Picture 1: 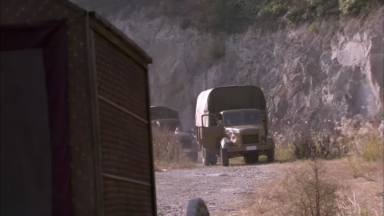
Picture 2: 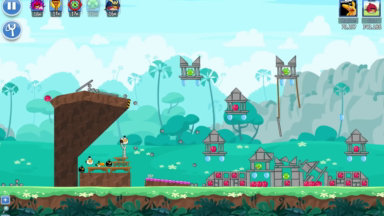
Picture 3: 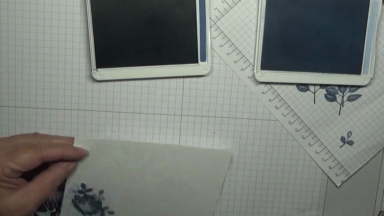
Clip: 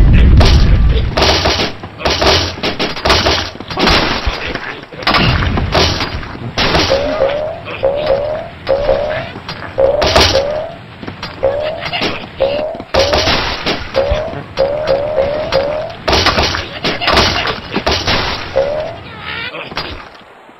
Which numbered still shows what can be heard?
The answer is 2